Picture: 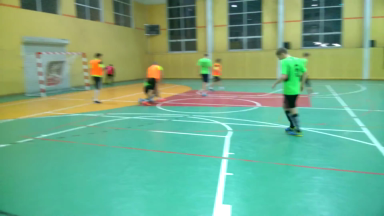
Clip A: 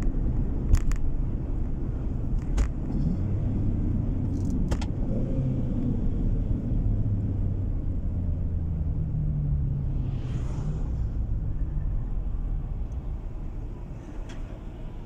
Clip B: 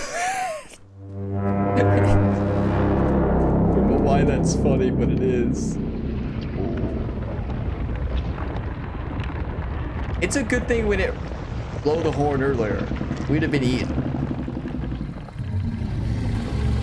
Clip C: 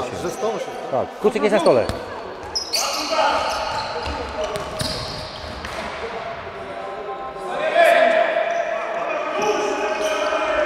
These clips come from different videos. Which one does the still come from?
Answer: C